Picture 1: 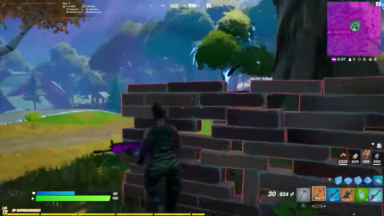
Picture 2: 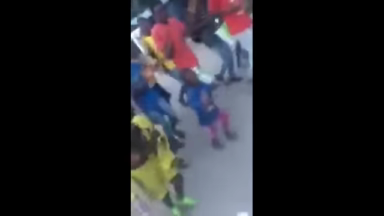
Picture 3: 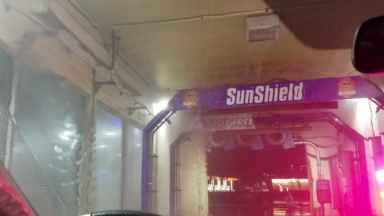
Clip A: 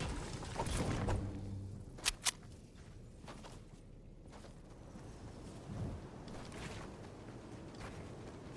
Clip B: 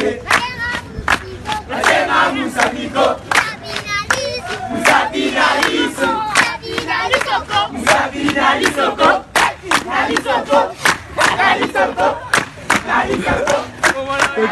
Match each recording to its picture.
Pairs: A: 1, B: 2